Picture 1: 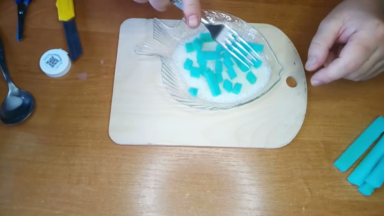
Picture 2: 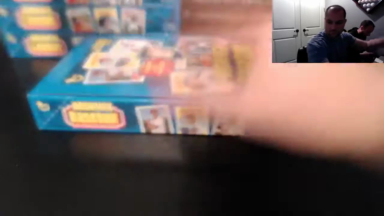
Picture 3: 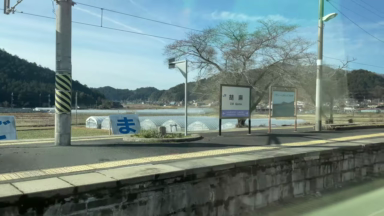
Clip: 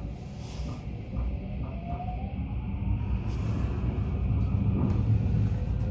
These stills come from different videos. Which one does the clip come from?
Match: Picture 3